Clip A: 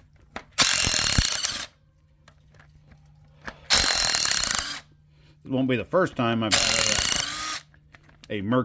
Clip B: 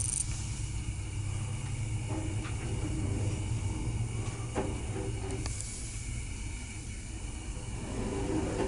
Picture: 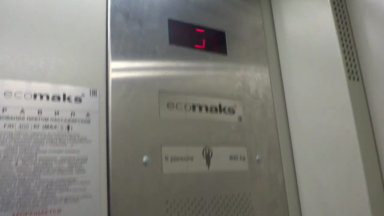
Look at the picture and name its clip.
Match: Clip B